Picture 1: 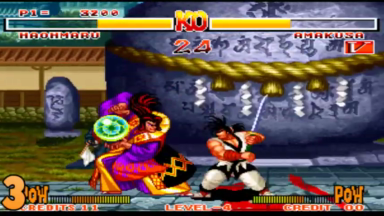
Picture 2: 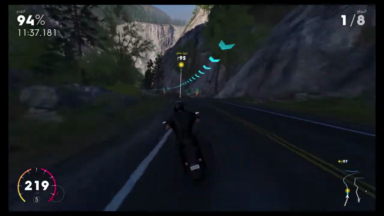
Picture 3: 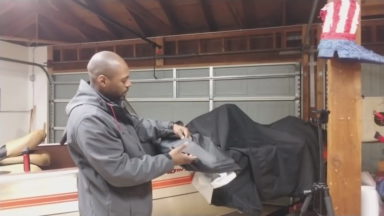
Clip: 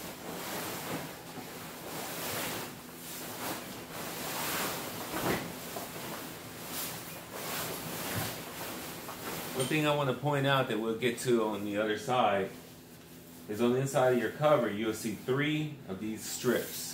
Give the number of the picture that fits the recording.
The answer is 3